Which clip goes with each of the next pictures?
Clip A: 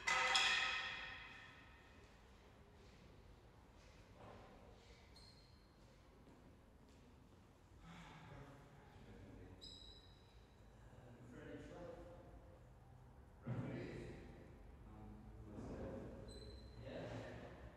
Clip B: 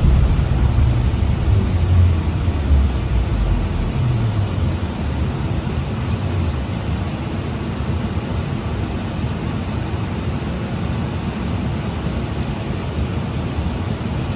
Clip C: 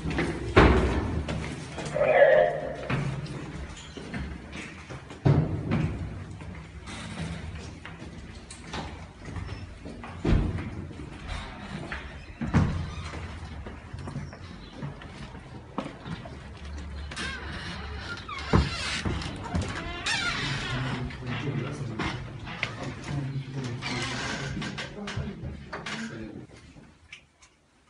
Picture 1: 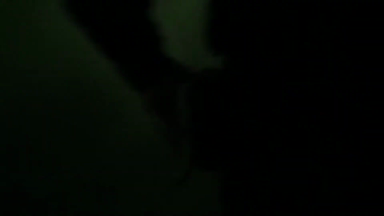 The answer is C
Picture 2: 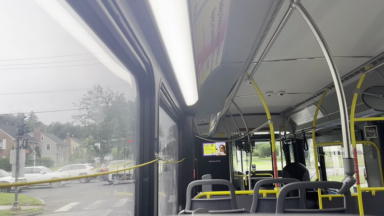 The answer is B